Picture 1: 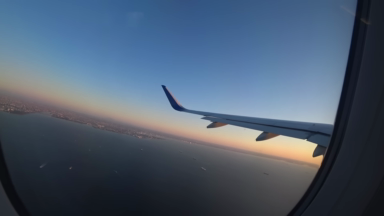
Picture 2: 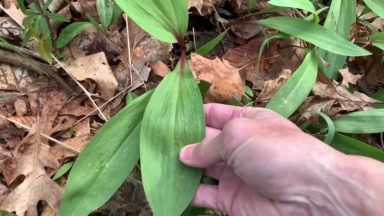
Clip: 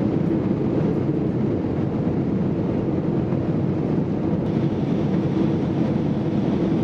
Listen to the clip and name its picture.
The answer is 1